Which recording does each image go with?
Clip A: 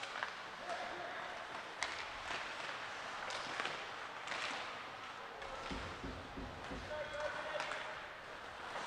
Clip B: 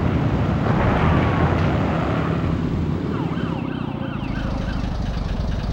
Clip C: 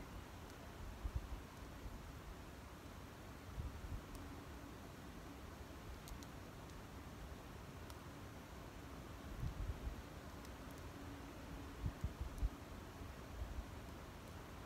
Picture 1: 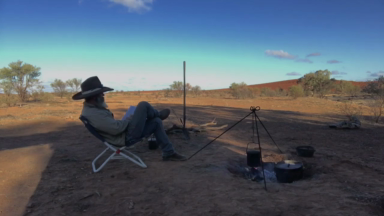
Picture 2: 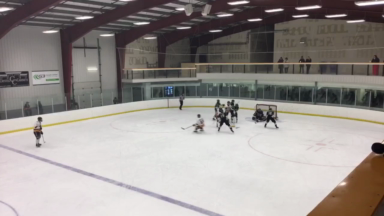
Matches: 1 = C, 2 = A